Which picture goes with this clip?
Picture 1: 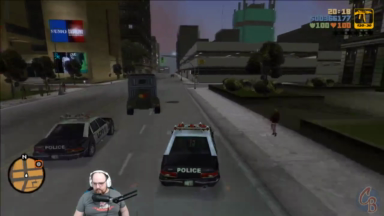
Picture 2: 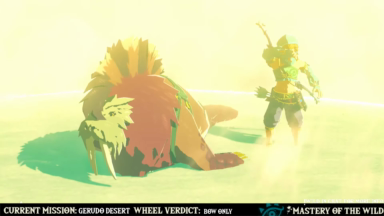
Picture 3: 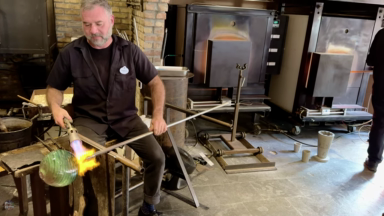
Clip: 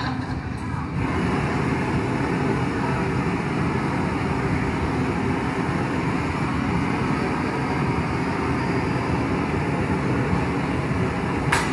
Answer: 3